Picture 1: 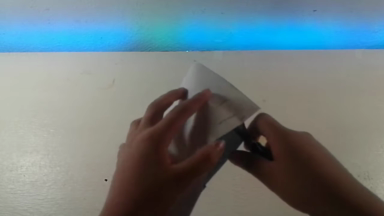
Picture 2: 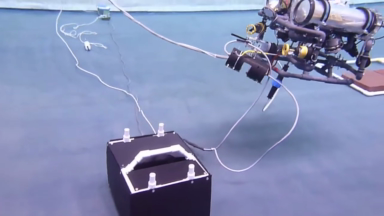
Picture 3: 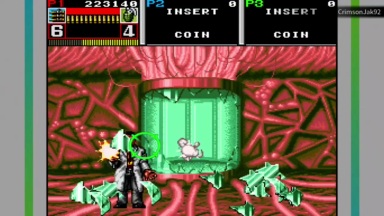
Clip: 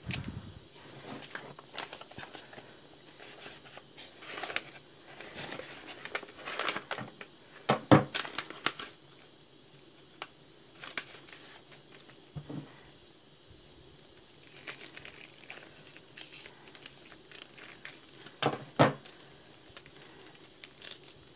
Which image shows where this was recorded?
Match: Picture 1